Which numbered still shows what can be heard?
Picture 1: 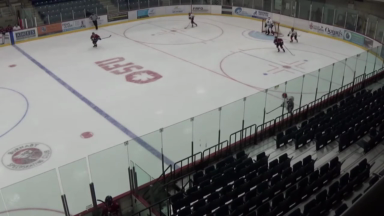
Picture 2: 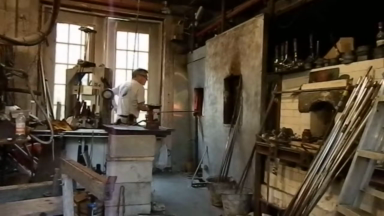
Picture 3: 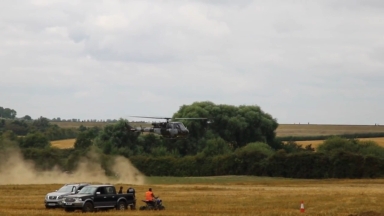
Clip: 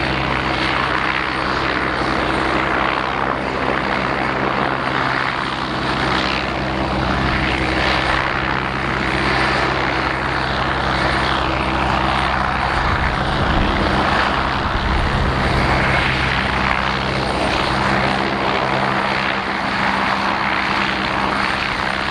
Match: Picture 3